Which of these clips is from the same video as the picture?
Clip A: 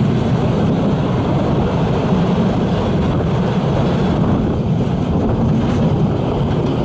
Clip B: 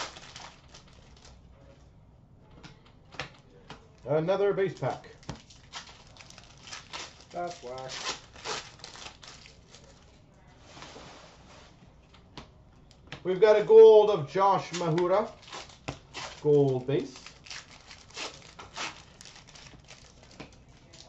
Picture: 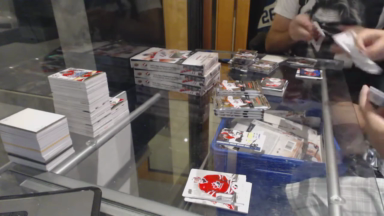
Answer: B